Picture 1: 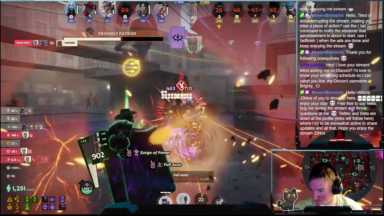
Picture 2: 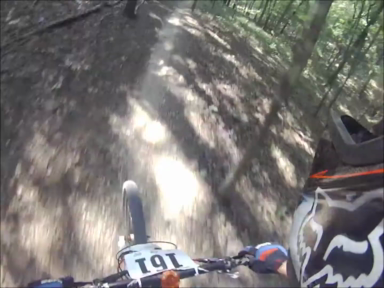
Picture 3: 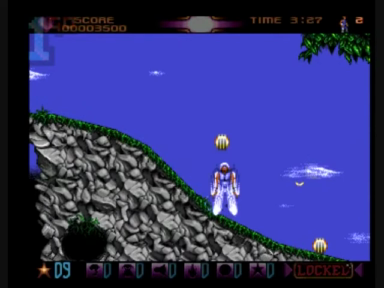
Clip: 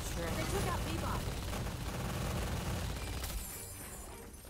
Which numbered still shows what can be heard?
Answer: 1